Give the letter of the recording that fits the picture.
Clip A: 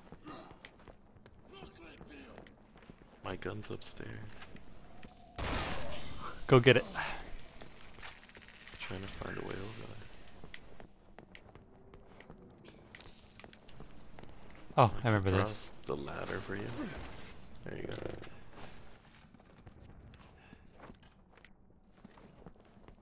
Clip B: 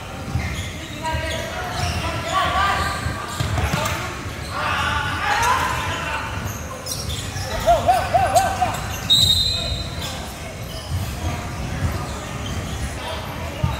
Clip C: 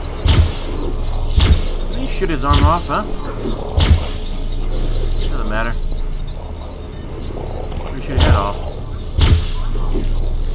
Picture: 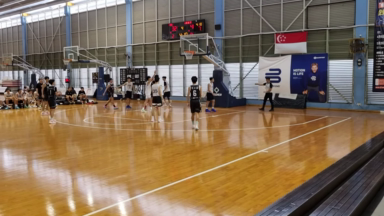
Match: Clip B